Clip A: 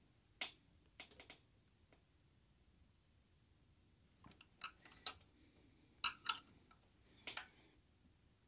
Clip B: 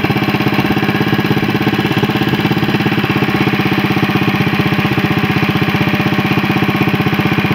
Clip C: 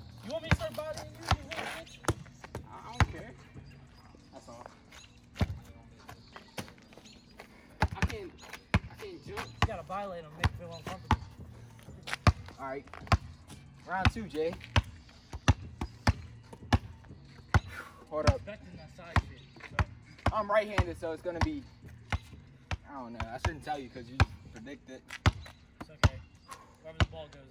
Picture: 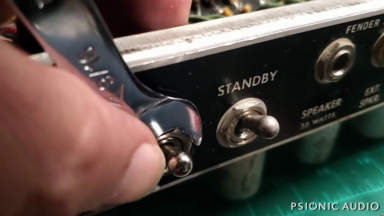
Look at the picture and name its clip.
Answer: A